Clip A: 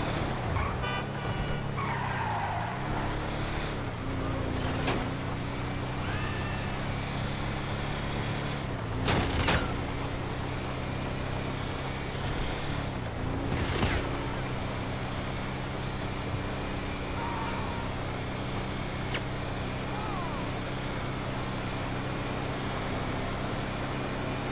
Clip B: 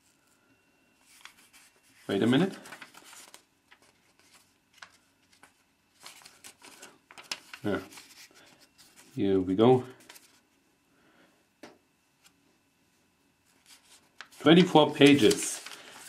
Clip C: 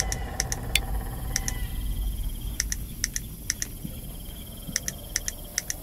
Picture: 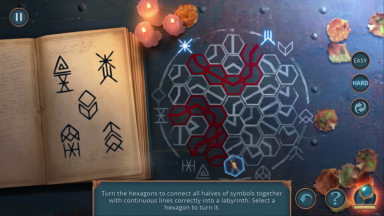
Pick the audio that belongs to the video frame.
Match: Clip C